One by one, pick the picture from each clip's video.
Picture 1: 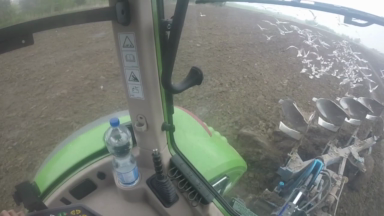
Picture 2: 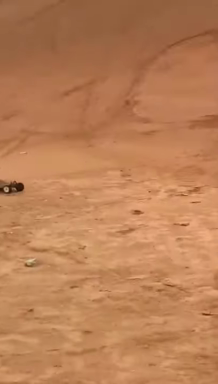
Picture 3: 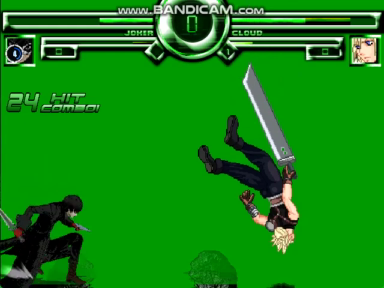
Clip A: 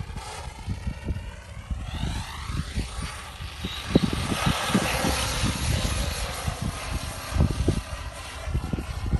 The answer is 2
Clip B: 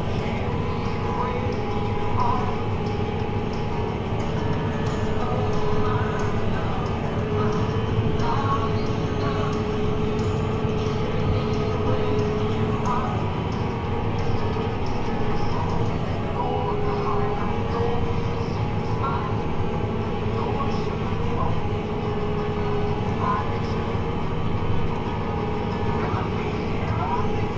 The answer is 1